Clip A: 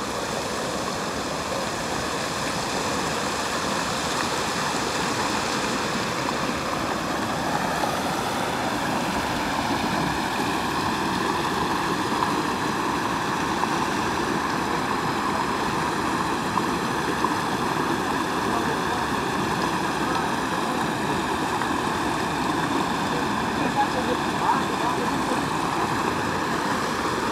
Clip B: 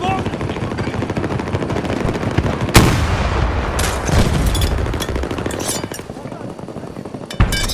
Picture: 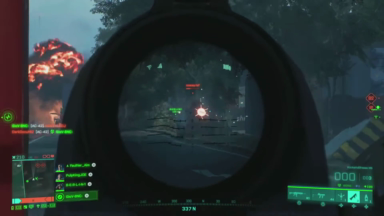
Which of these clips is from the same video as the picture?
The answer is B